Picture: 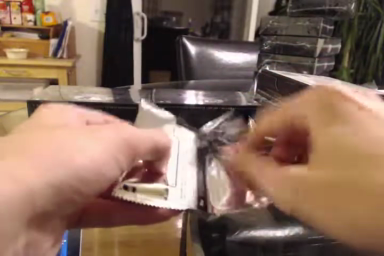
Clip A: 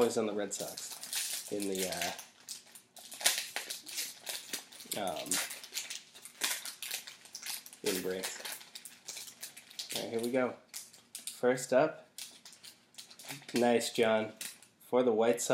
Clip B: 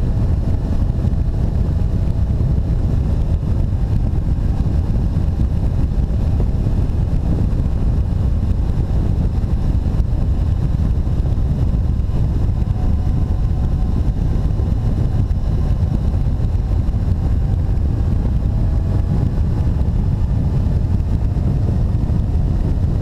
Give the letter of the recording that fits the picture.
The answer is A